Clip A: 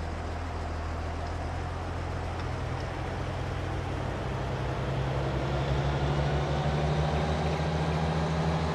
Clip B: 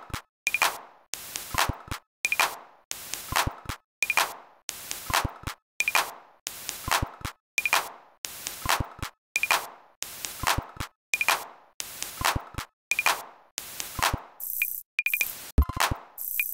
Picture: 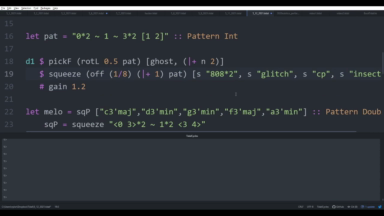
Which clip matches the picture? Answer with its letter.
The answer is B